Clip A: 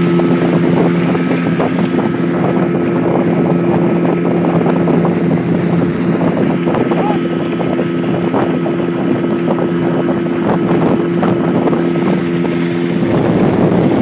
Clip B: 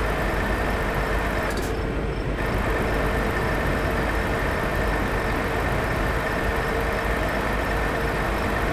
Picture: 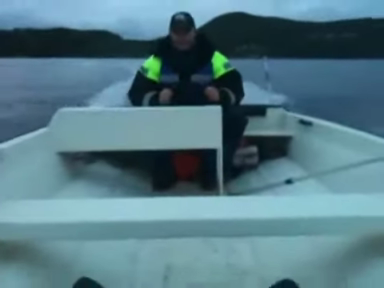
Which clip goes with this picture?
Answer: A